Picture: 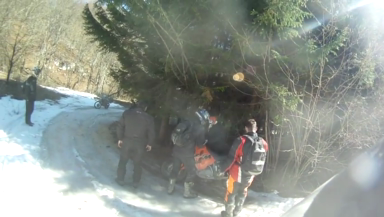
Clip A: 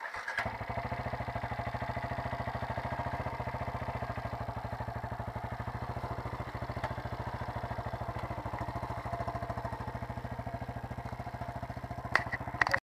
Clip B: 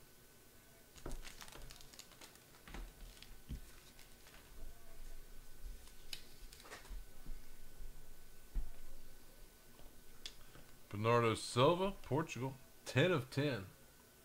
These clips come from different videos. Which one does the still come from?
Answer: A